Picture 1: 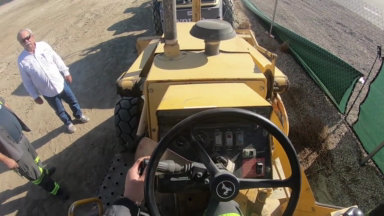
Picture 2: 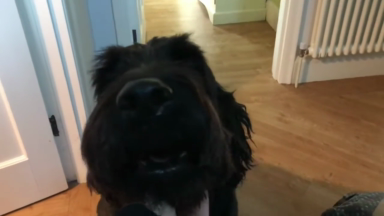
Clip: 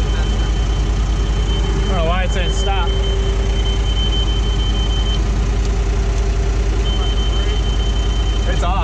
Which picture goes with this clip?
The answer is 1